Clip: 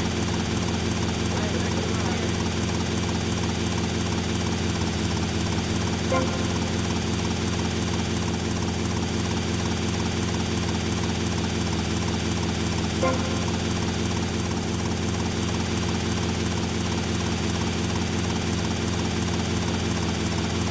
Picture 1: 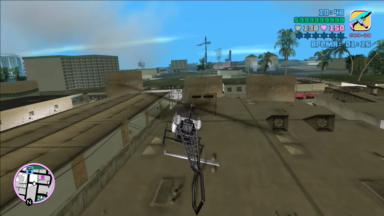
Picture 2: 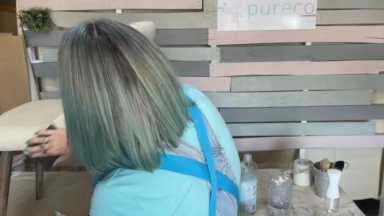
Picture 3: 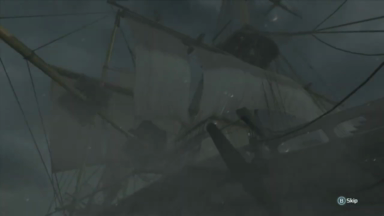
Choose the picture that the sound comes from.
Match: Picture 1